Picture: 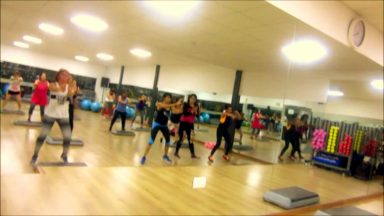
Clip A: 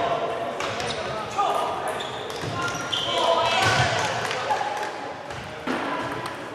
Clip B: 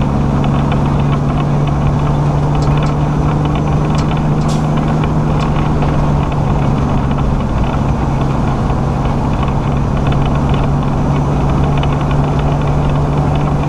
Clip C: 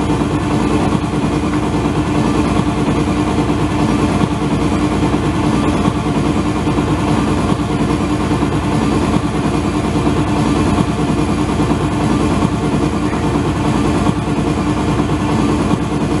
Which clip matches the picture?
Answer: C